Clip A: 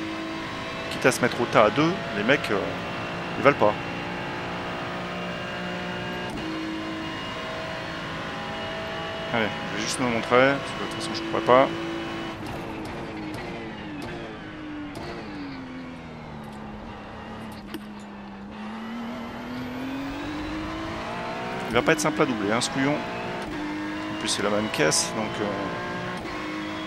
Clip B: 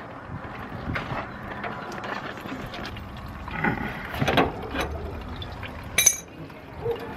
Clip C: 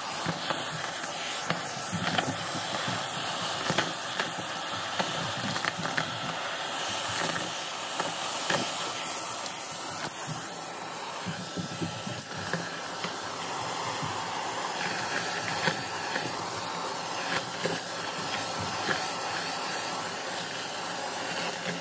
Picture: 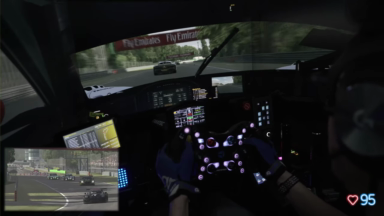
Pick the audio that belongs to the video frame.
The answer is A